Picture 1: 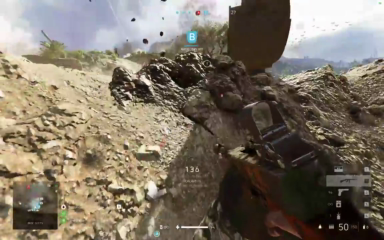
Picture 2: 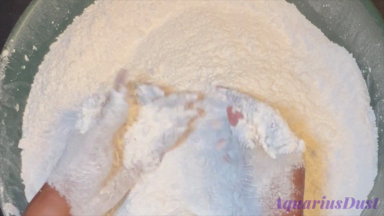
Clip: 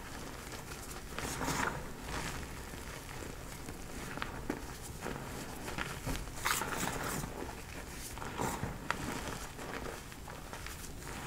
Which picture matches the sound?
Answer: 2